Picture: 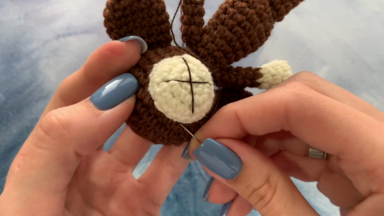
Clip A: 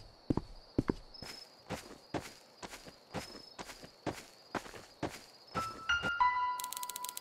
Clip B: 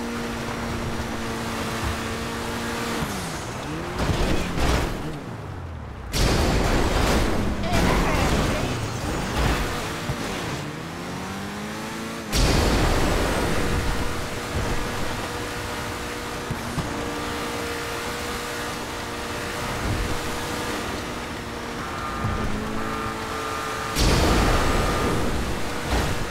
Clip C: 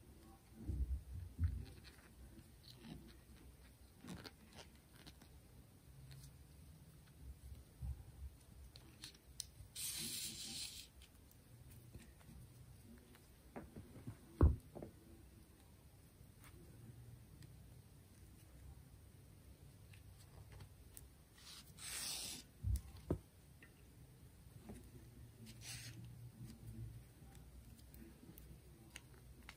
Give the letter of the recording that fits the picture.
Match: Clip C